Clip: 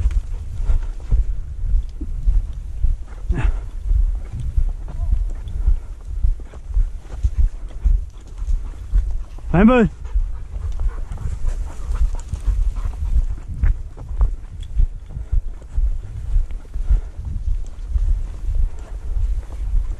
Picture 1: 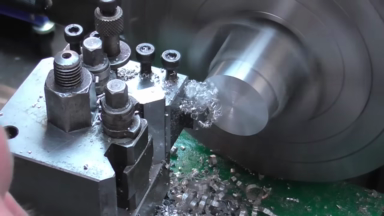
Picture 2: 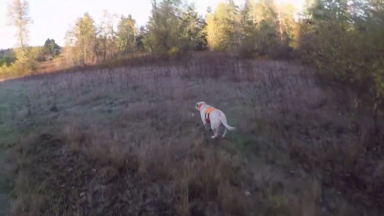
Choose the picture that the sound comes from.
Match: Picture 2